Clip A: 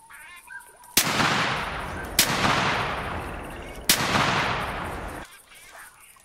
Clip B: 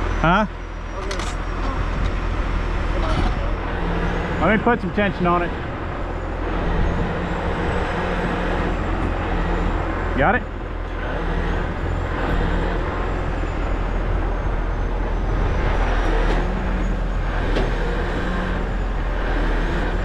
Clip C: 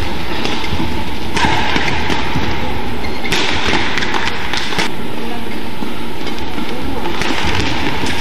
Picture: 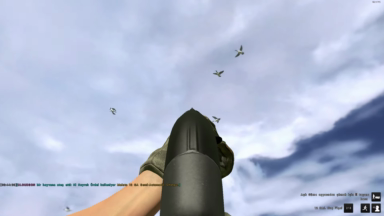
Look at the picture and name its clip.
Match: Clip A